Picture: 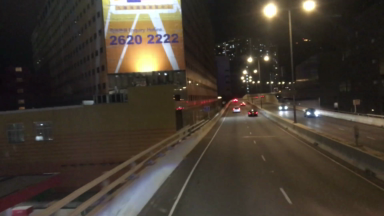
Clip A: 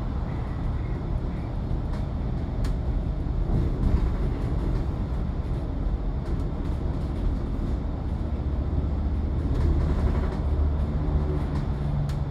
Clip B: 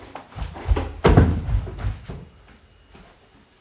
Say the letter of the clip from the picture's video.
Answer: A